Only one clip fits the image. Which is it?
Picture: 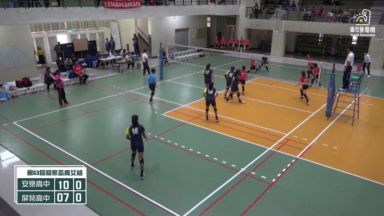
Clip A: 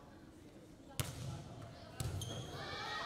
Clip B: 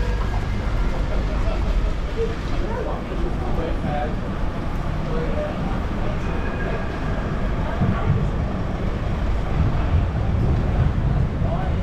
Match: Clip A